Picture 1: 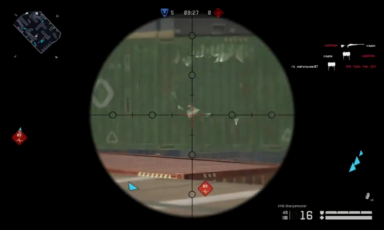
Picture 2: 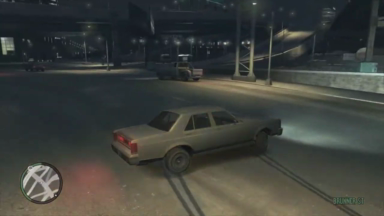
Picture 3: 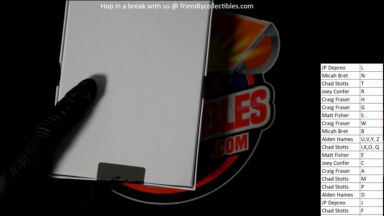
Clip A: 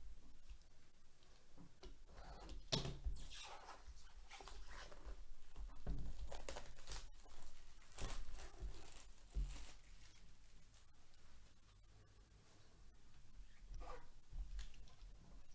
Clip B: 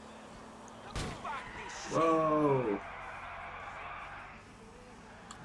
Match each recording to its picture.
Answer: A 3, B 2